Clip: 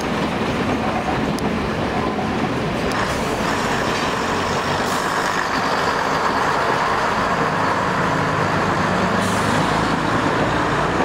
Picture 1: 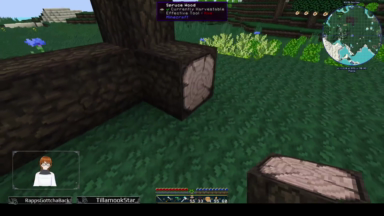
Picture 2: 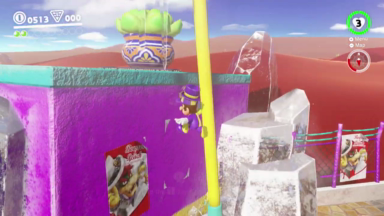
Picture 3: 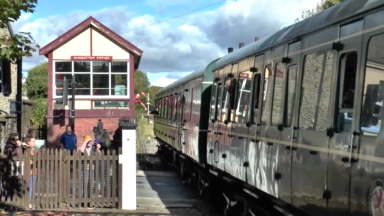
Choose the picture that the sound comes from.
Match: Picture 3